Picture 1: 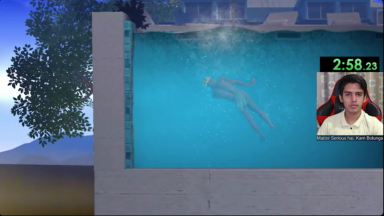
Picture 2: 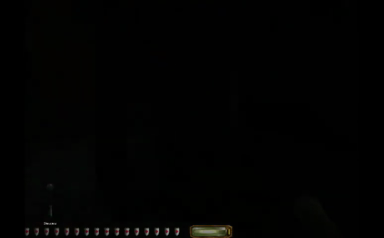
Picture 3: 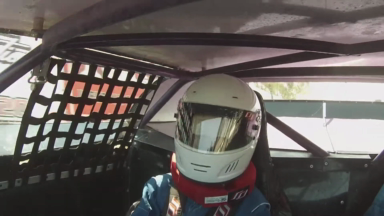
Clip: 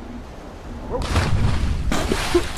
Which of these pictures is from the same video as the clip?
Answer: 1